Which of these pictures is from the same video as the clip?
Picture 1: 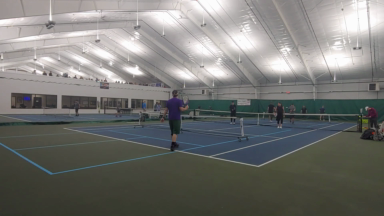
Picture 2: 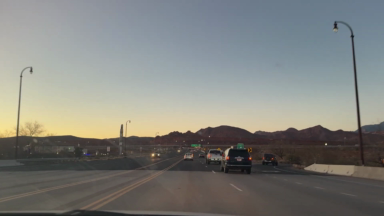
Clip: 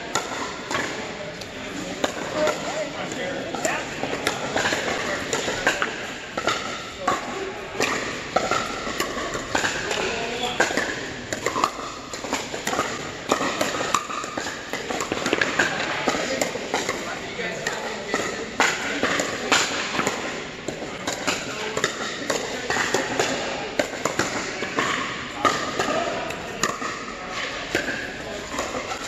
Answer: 1